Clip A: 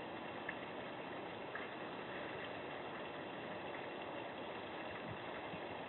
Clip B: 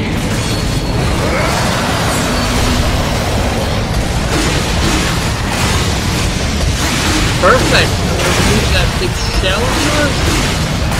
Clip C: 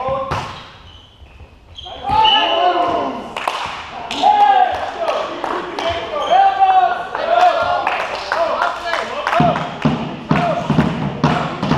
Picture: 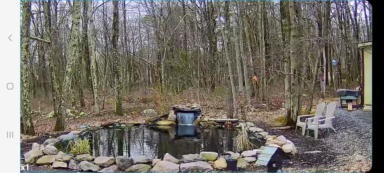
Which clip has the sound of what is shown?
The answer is A